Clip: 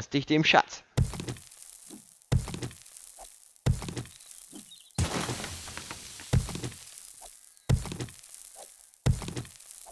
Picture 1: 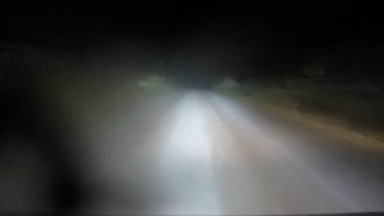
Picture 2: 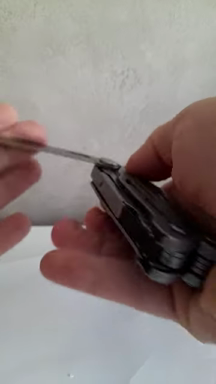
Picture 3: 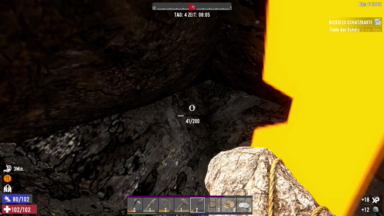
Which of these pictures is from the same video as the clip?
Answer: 3